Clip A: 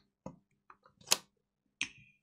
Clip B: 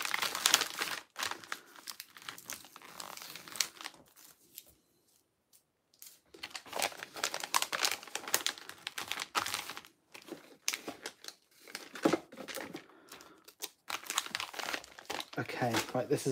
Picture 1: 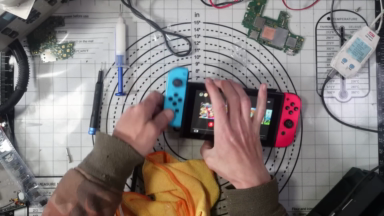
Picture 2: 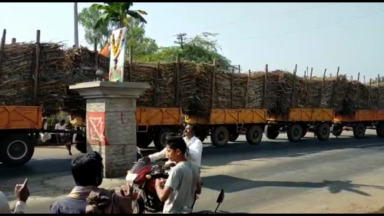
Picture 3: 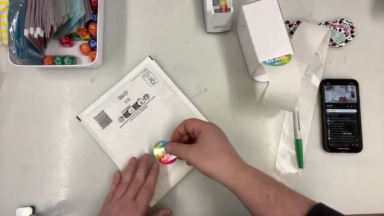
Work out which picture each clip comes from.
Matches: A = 1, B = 3